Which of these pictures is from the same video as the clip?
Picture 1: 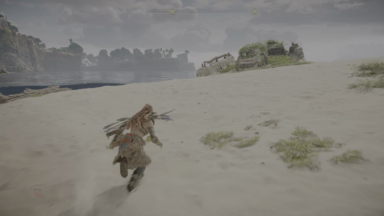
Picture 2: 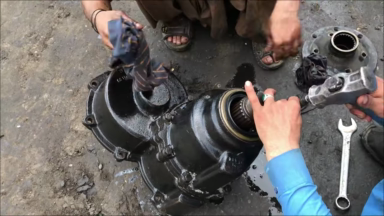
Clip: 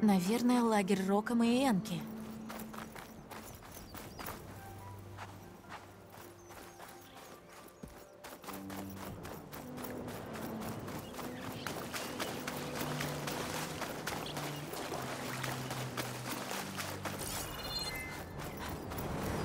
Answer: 1